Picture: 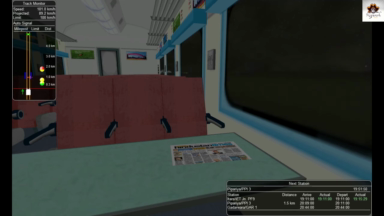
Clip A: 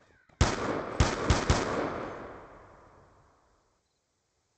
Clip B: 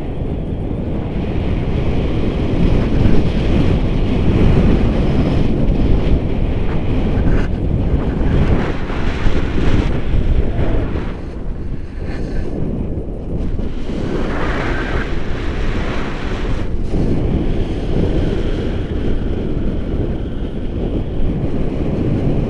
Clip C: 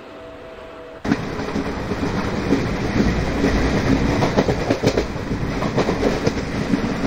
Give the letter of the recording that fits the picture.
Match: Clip C